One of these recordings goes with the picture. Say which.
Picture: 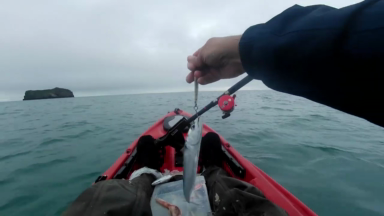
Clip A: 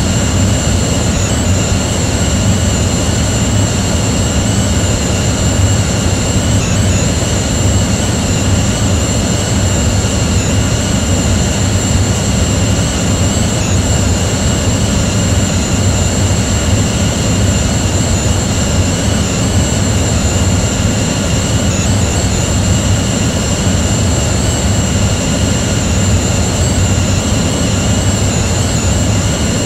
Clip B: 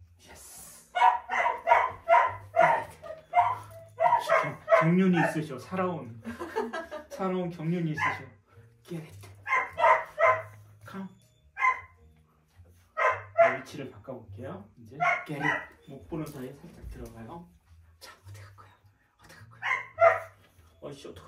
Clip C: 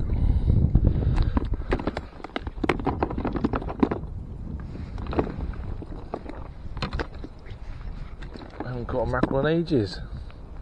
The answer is C